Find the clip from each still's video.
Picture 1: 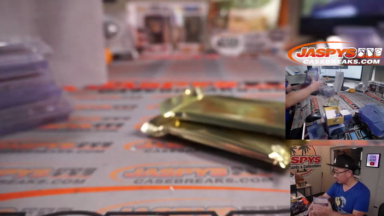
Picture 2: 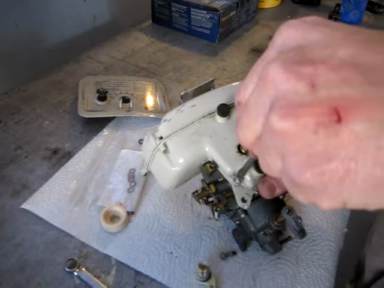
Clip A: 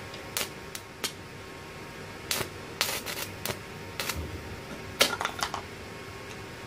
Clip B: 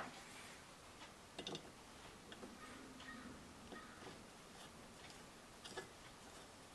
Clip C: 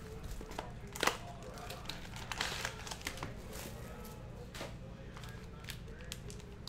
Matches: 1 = C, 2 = B